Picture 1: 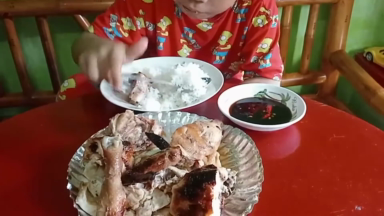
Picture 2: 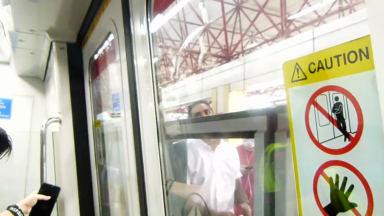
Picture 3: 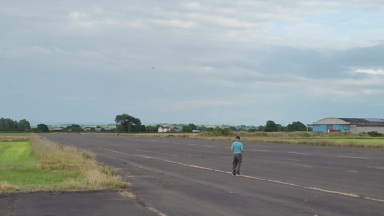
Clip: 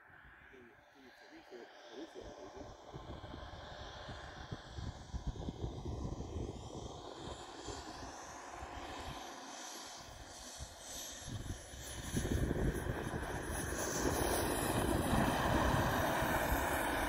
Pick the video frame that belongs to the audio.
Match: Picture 3